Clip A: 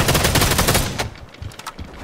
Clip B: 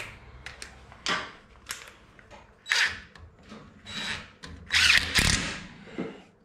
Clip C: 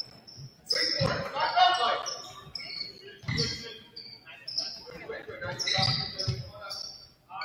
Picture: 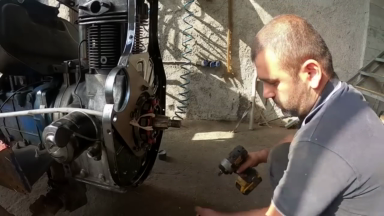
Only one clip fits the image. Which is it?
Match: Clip B